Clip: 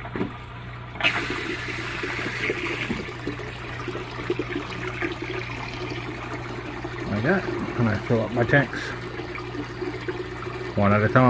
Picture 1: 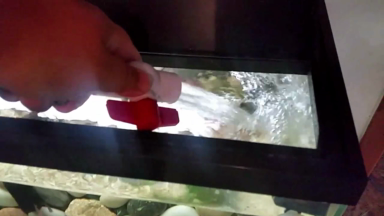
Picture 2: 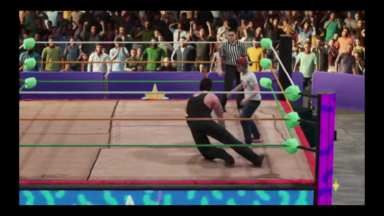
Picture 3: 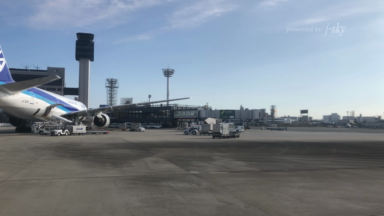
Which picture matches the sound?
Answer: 1